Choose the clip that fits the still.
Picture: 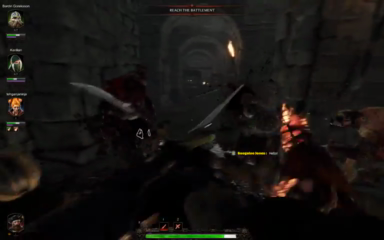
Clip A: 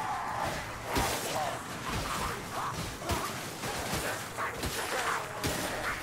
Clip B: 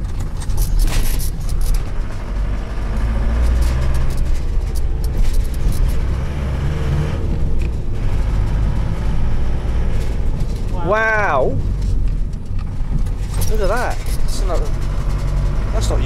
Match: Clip A